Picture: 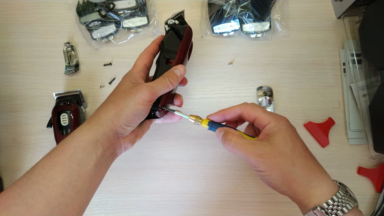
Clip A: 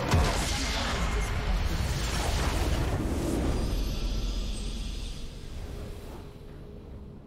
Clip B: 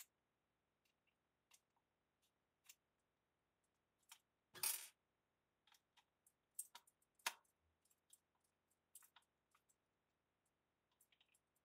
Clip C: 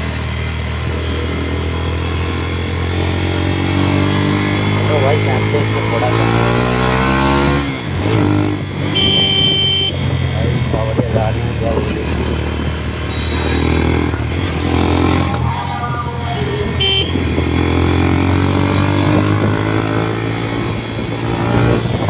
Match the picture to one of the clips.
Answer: B